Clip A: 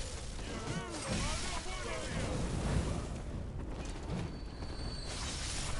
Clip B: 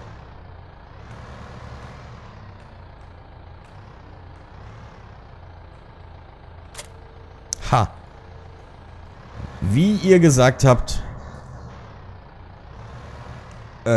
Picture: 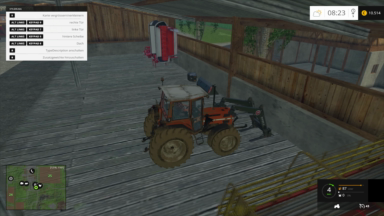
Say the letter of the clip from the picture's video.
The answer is B